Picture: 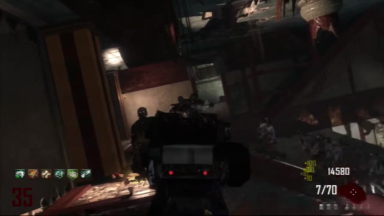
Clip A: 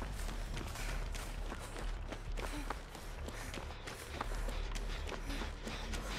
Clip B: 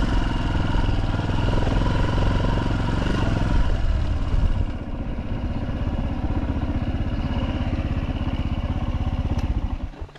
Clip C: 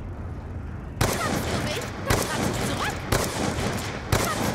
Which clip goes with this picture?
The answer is C